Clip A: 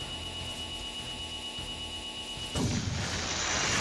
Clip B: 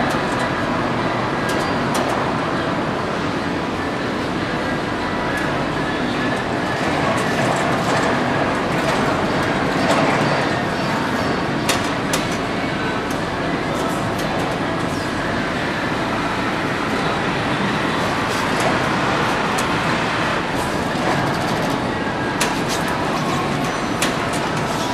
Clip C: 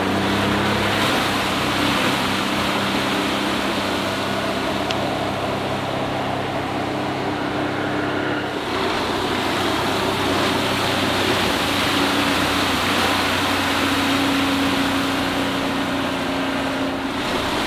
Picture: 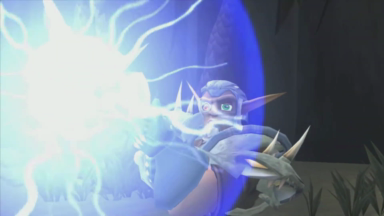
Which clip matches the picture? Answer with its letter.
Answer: A